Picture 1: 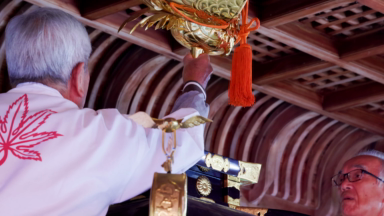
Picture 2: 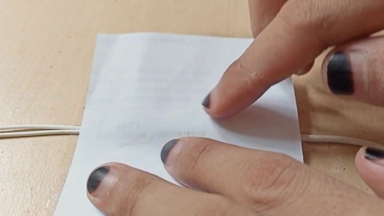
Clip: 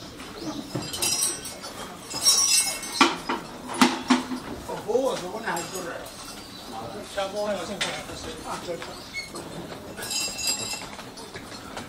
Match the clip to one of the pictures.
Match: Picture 1